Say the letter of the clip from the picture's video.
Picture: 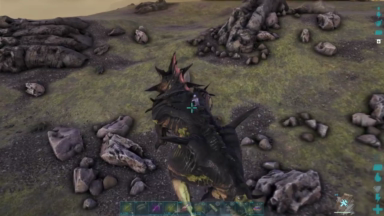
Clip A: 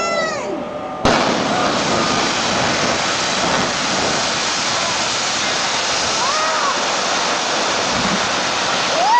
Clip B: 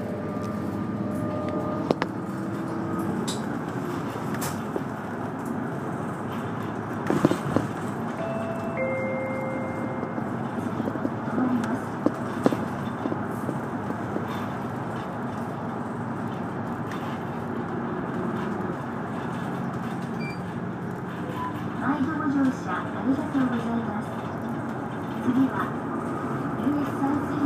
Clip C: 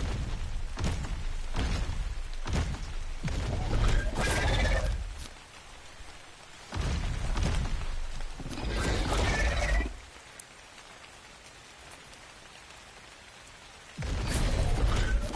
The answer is C